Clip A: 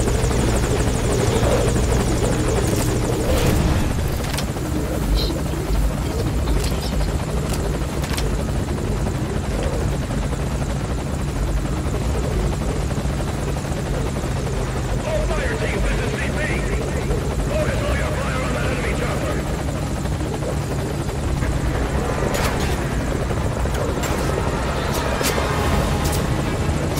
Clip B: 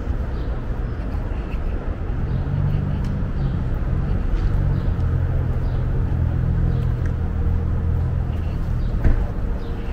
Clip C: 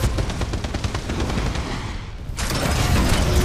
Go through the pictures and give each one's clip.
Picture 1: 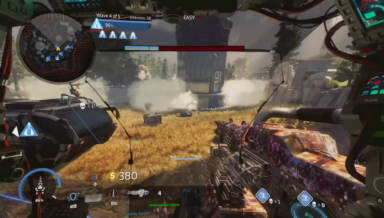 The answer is C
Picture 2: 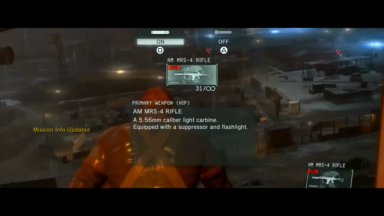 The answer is A